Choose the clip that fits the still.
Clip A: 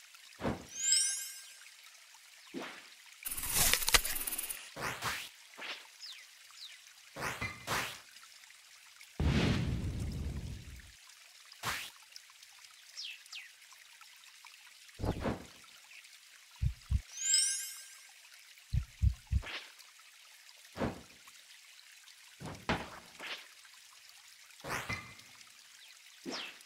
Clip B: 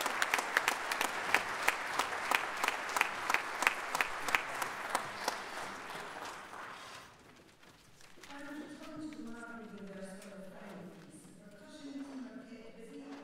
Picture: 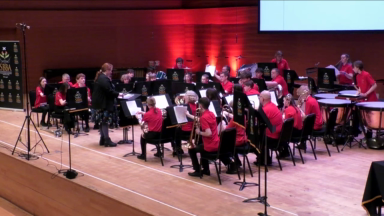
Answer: B